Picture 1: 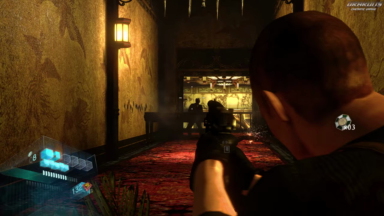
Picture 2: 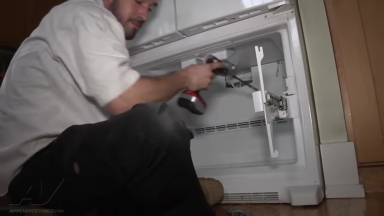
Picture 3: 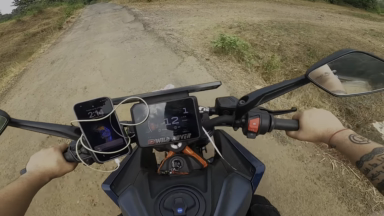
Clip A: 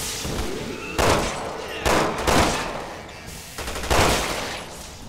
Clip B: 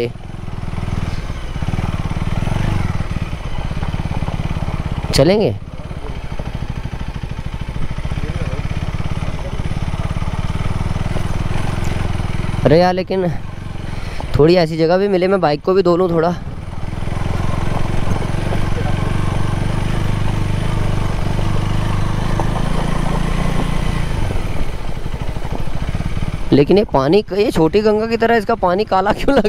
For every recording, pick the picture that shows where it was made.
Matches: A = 1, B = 3